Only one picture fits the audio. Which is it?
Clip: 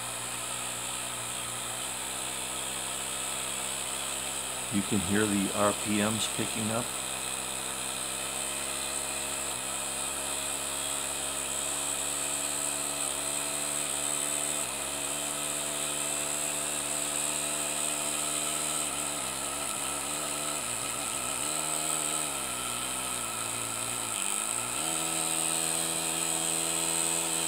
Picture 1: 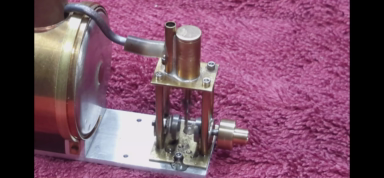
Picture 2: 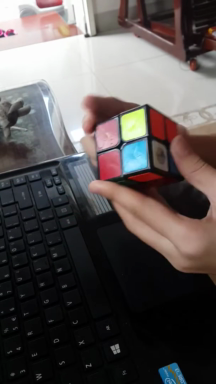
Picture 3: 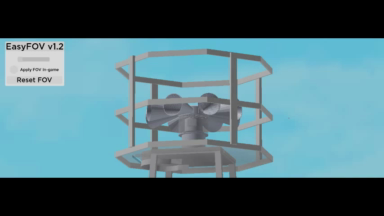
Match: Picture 1